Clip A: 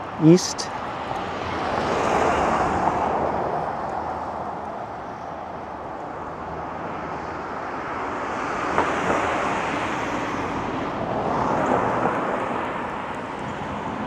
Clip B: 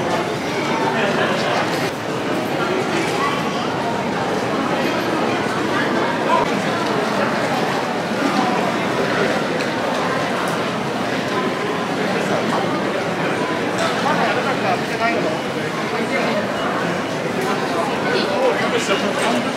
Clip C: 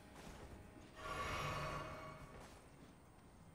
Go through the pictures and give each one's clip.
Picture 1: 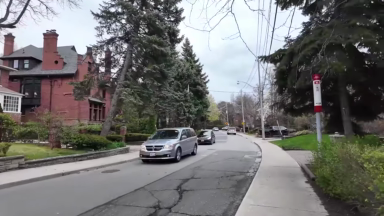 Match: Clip A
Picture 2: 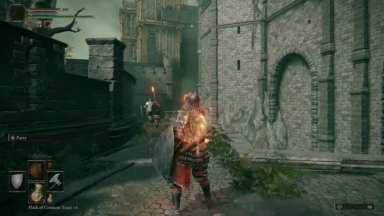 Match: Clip C